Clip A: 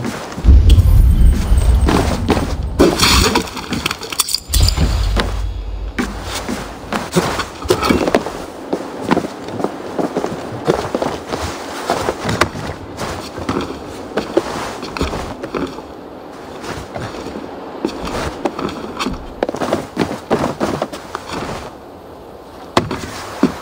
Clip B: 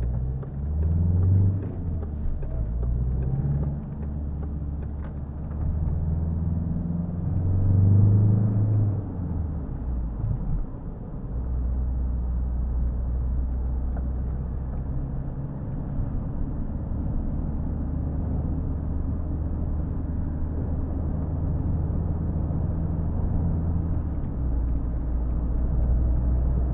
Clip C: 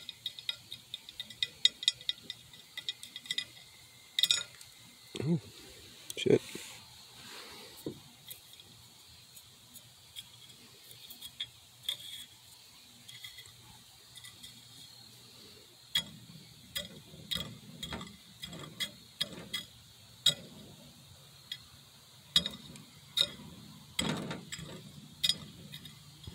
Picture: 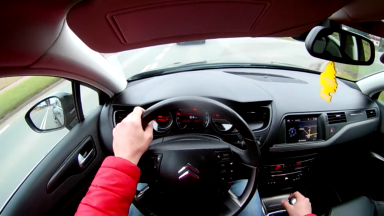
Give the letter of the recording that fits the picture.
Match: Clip B